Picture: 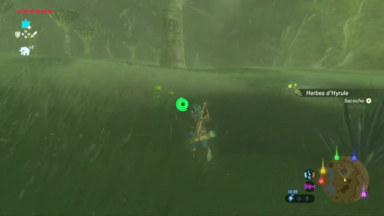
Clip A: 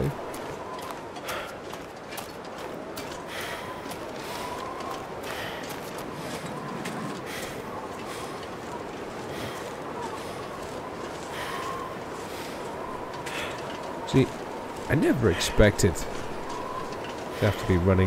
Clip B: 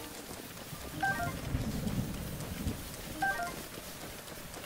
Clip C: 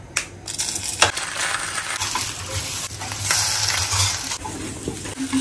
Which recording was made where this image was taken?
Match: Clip B